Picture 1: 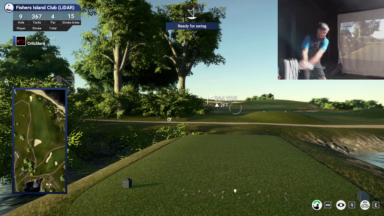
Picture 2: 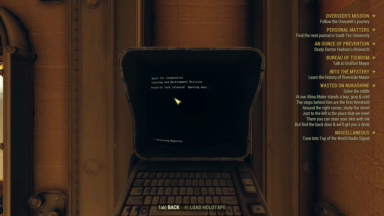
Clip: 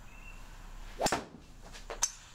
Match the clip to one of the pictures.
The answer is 1